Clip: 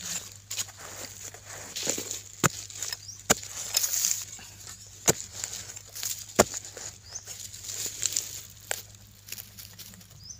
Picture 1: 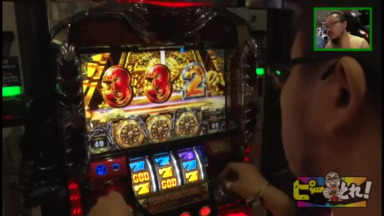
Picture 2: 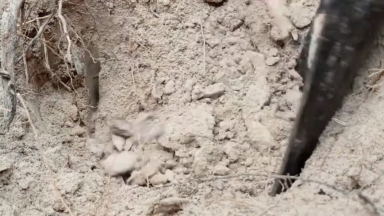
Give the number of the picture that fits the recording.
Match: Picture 2